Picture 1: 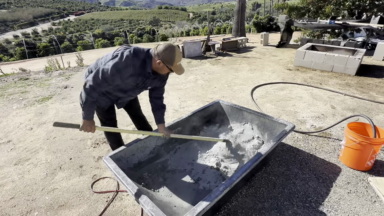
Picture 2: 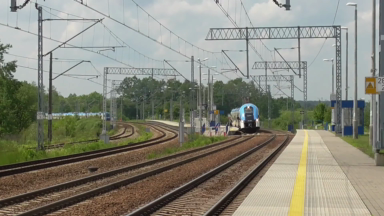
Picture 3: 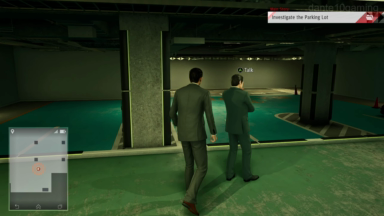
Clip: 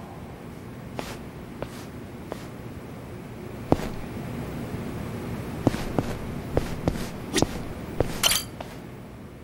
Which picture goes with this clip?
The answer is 3